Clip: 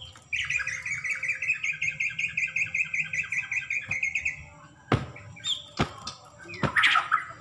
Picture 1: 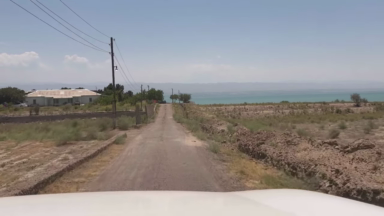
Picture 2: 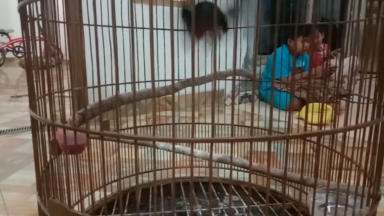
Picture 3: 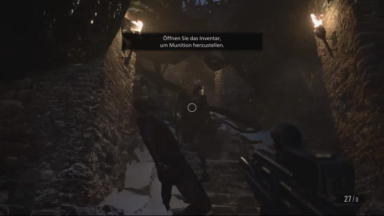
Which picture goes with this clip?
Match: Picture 2